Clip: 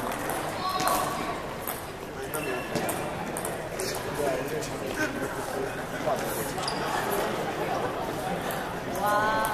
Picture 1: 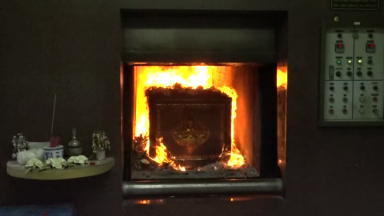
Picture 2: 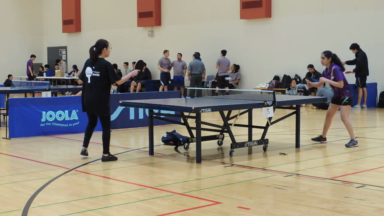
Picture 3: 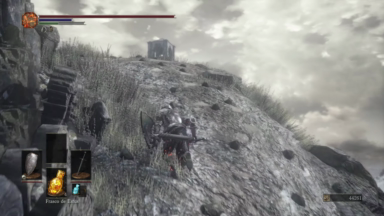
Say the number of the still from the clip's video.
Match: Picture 2